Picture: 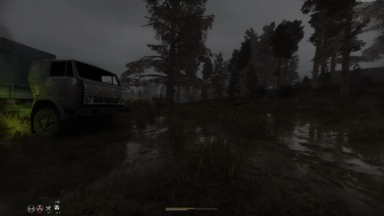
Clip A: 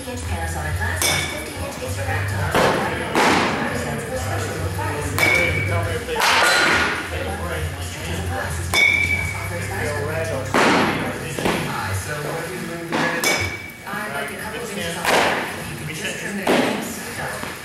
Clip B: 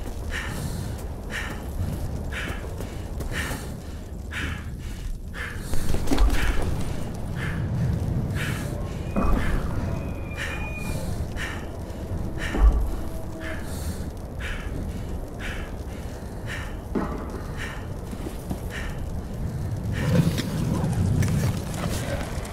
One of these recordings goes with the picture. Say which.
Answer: B